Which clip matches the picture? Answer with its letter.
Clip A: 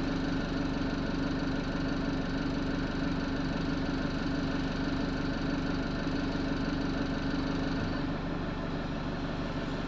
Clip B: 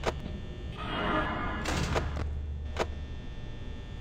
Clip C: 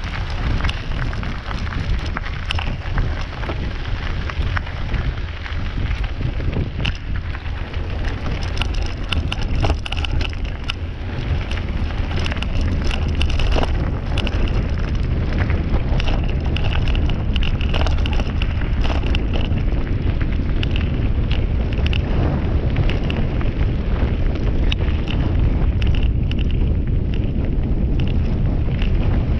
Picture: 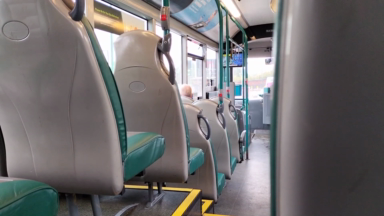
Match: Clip A